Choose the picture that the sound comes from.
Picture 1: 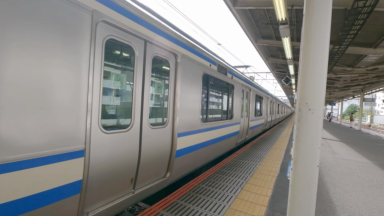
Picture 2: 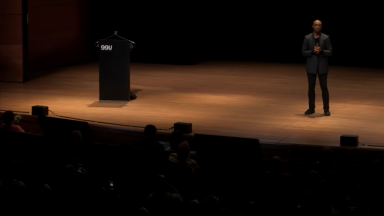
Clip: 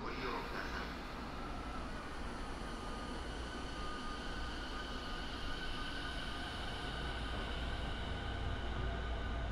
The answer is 1